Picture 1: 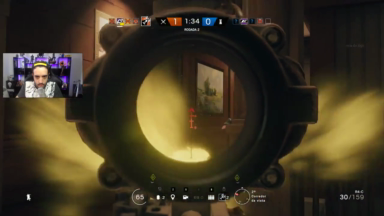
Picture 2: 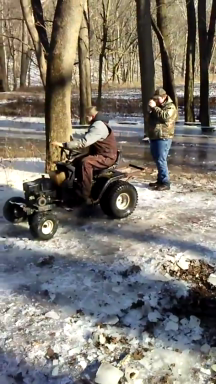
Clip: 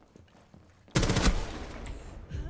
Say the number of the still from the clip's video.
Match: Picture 1